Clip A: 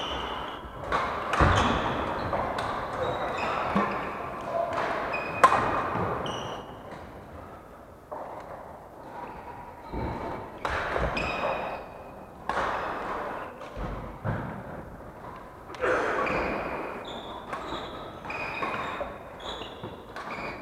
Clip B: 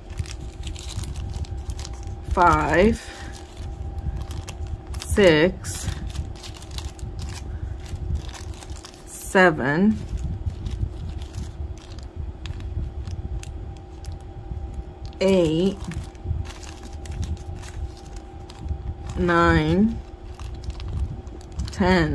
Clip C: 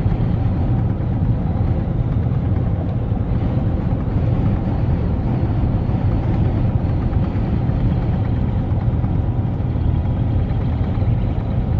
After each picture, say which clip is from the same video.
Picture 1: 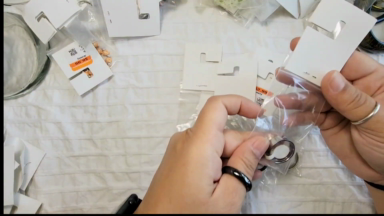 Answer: B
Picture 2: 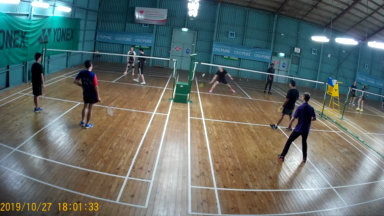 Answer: A